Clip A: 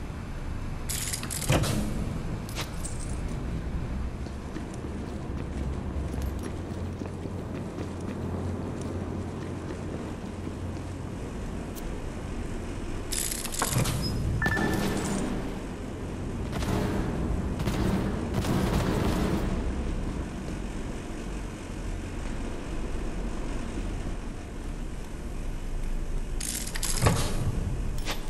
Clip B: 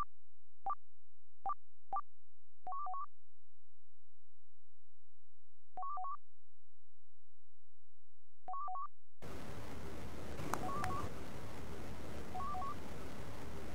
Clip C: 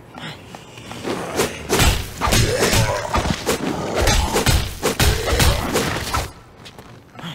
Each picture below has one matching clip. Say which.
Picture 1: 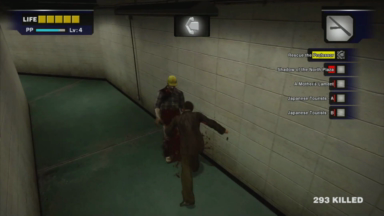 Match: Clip C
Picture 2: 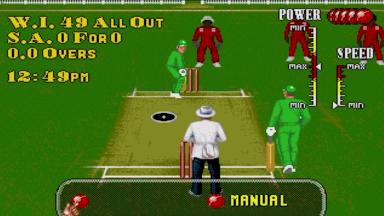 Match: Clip B